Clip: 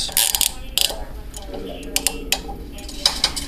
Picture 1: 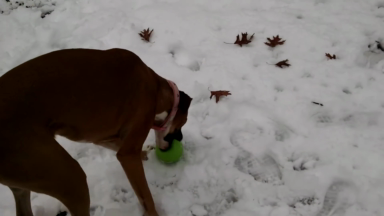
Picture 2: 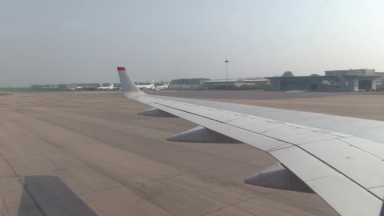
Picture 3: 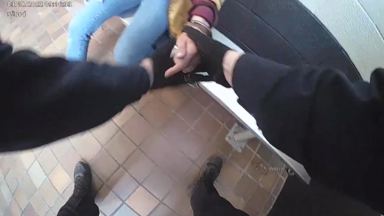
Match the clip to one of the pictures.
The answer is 3